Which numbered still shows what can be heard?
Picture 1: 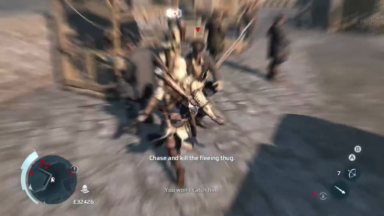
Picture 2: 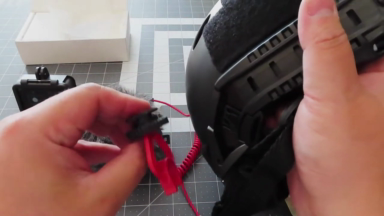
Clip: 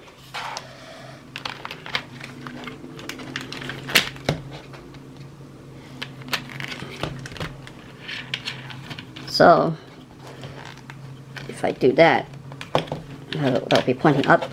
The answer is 2